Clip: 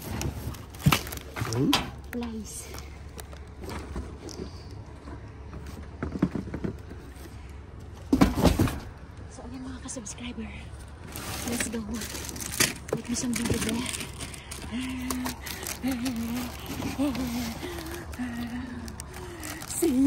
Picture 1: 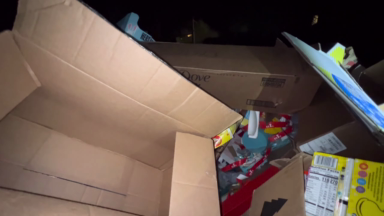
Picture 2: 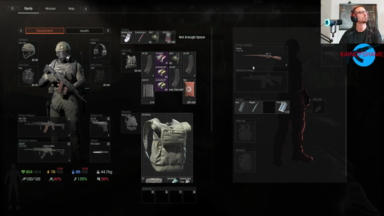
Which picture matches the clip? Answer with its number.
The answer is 1